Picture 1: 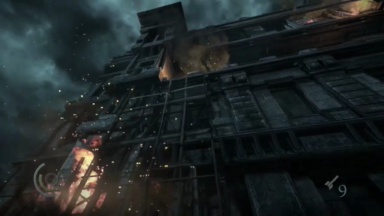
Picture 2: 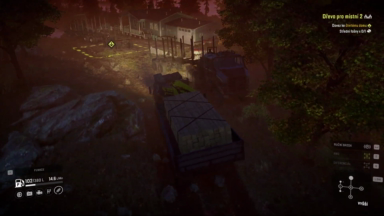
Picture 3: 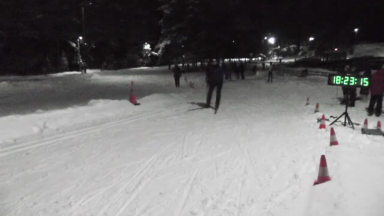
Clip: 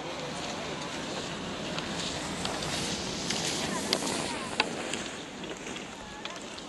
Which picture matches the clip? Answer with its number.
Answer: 3